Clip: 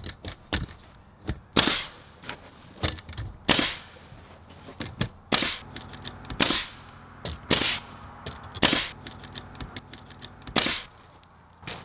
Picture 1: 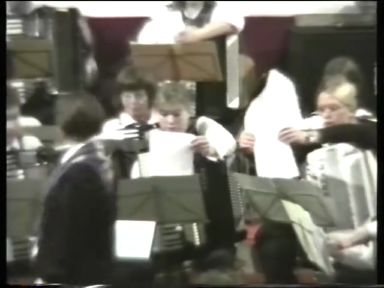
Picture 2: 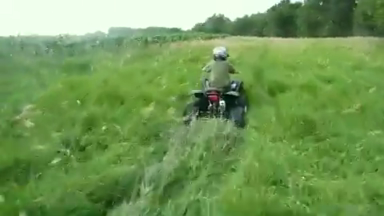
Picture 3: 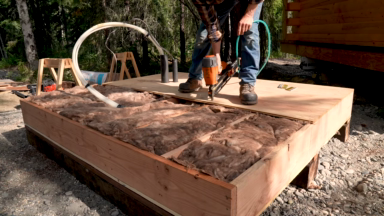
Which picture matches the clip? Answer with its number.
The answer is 3